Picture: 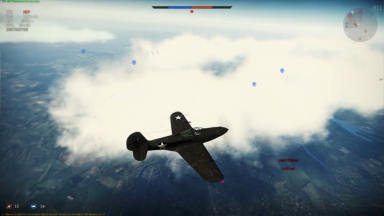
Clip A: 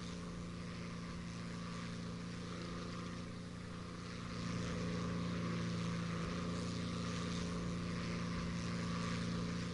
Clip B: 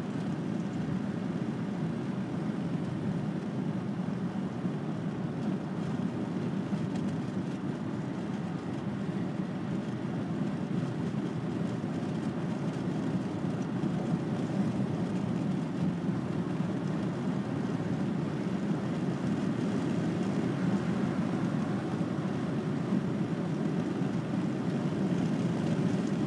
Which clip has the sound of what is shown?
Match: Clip A